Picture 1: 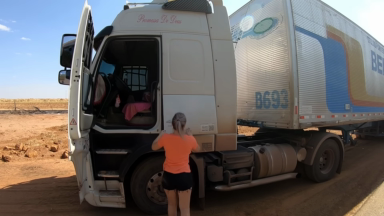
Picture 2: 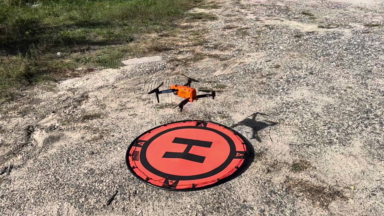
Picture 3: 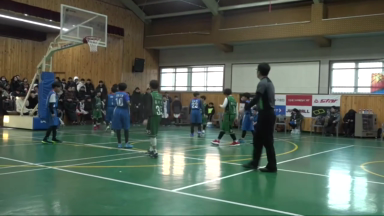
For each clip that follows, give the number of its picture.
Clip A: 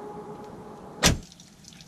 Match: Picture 1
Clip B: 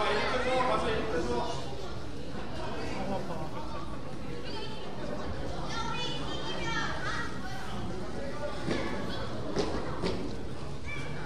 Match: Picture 3